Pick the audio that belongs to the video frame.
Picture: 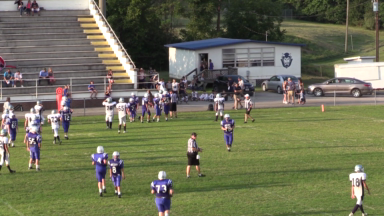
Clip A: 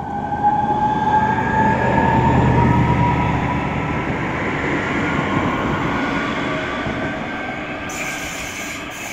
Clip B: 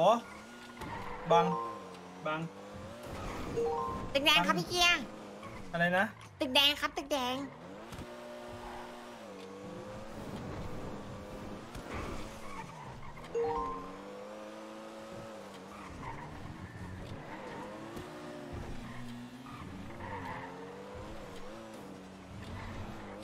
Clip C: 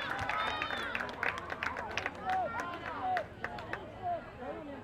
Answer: C